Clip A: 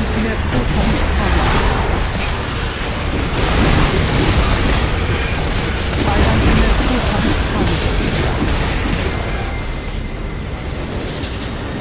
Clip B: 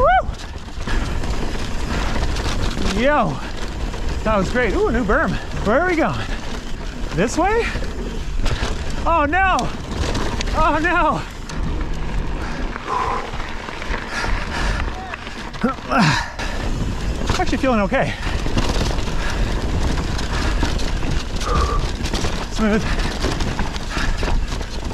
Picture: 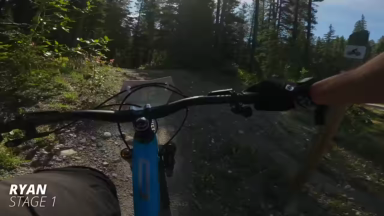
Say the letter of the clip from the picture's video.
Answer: B